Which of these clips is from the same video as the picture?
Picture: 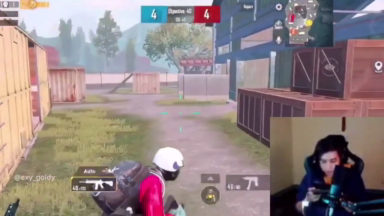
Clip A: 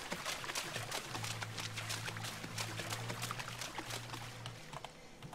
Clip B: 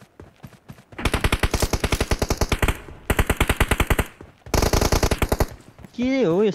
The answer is B